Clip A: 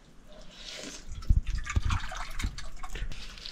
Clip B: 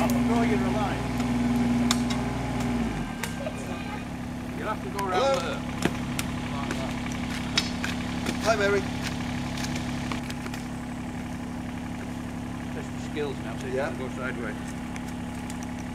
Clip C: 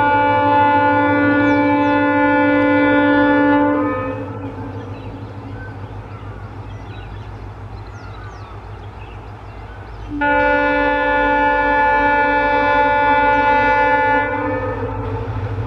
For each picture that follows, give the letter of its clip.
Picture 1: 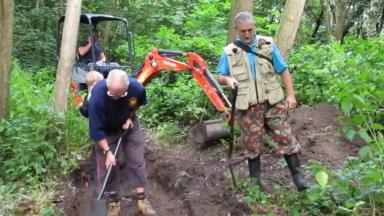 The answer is B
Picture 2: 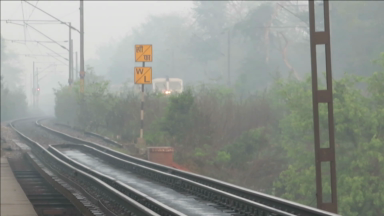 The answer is C